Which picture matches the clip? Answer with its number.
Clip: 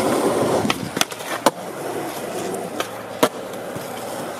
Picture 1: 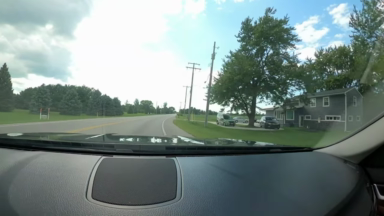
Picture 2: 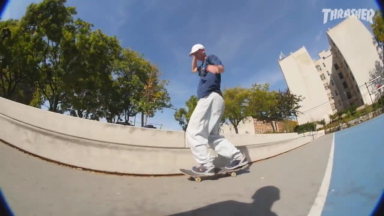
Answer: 2